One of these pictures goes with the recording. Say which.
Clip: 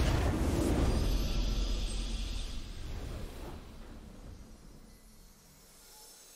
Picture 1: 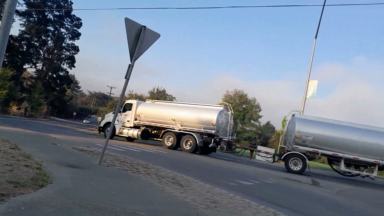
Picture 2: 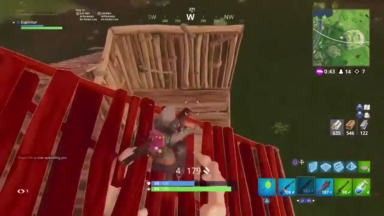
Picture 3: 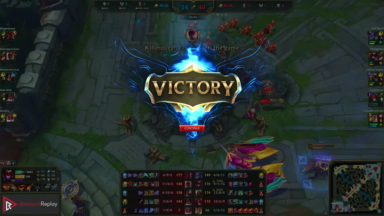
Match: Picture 3